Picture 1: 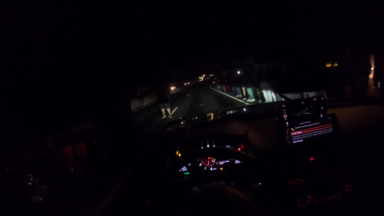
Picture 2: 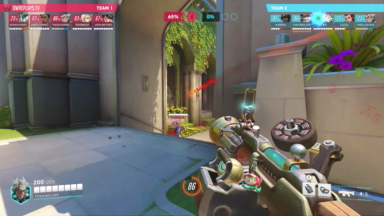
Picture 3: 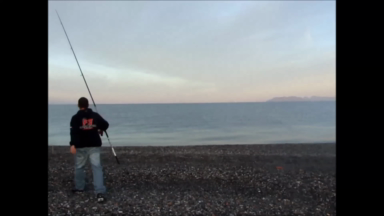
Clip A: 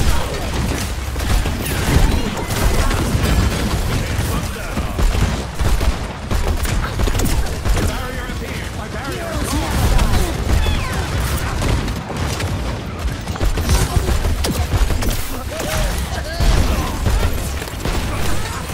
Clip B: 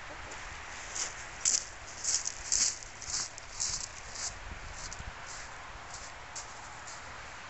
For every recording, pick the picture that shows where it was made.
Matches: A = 2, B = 3